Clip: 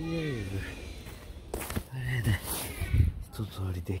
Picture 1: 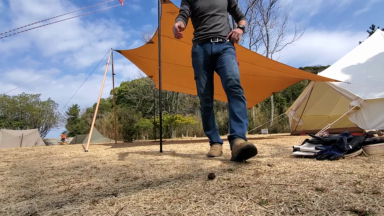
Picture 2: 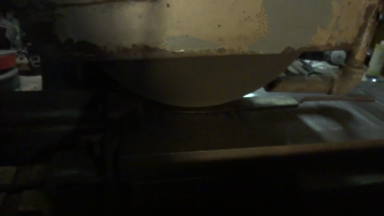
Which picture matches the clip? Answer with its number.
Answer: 1